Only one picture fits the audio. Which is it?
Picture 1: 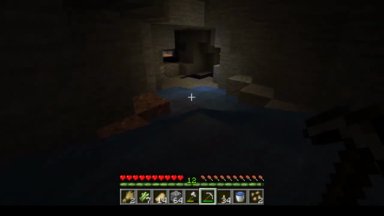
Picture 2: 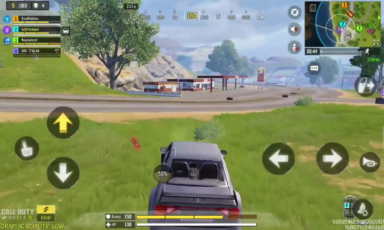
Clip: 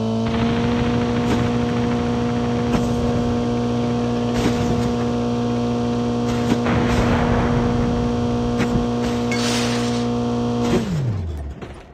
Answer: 2